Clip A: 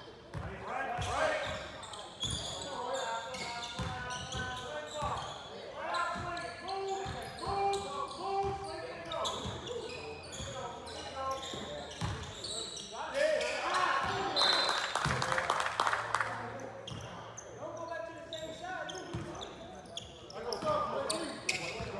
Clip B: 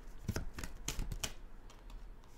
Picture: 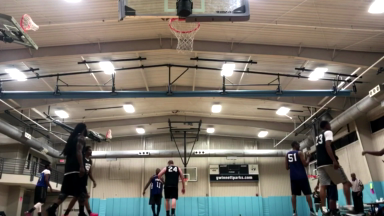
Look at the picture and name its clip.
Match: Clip A